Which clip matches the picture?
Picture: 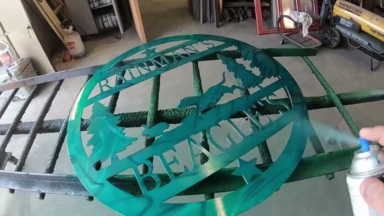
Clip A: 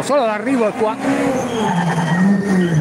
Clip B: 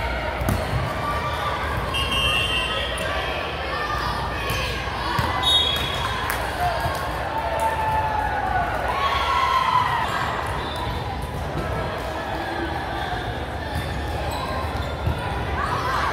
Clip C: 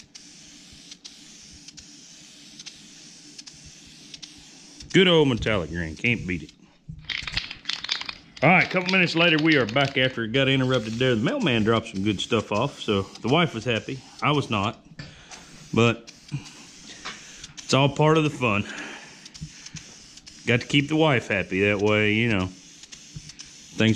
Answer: C